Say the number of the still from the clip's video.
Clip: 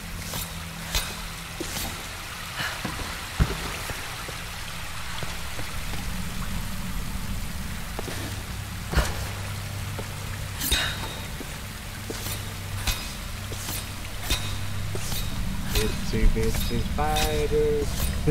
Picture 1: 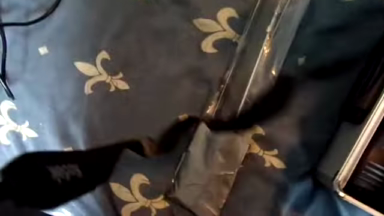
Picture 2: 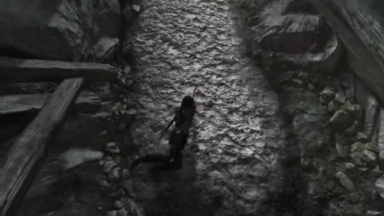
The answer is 2